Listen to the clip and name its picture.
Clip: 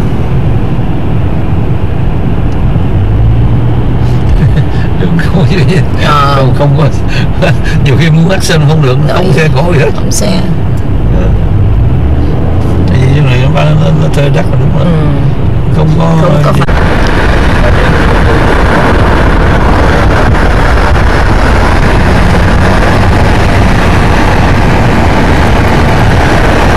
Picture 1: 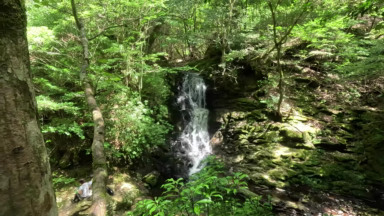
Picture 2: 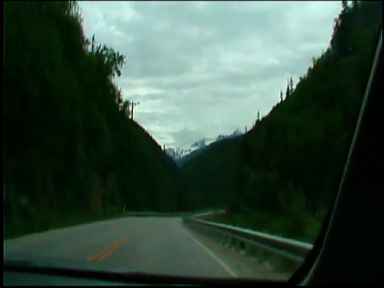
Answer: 2